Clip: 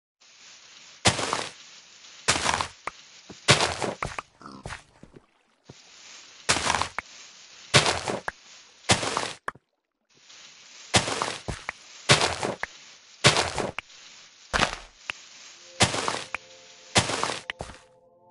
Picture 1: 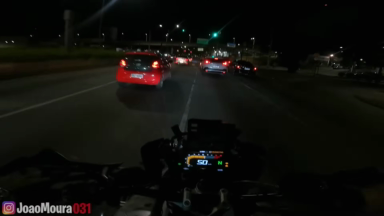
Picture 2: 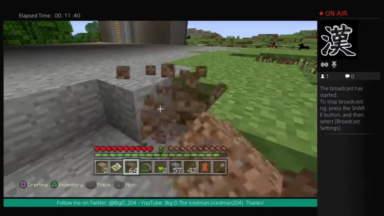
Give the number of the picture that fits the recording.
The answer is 2